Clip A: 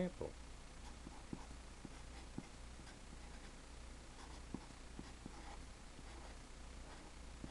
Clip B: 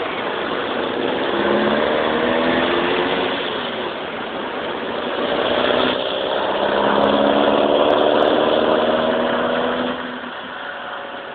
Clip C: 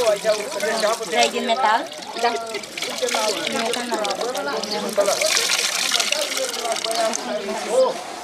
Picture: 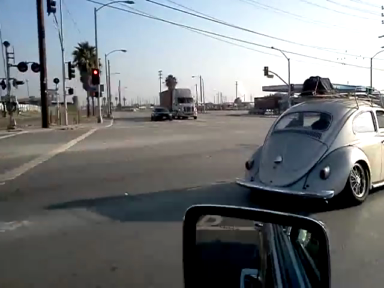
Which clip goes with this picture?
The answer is B